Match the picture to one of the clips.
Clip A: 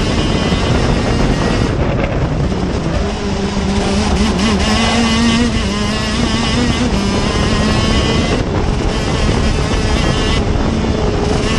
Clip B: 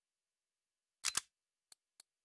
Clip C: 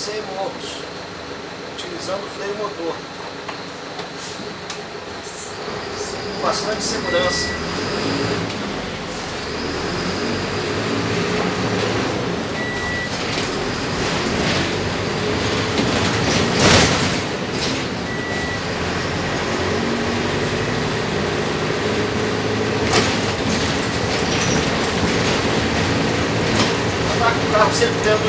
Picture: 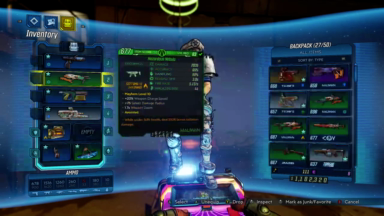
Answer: B